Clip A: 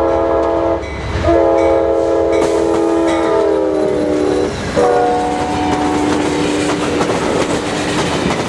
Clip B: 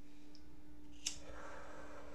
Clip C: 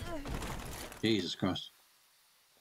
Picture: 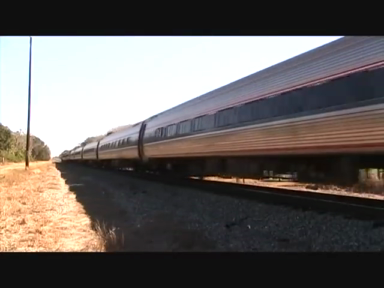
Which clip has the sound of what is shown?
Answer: A